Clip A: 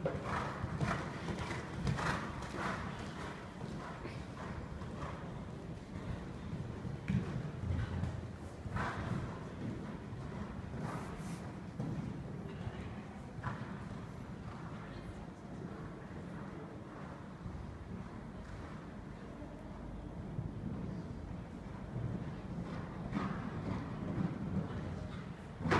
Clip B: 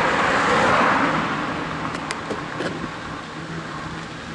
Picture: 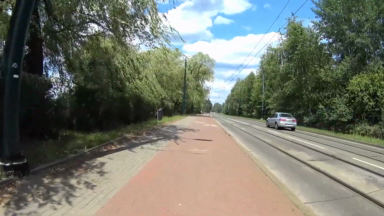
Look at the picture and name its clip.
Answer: B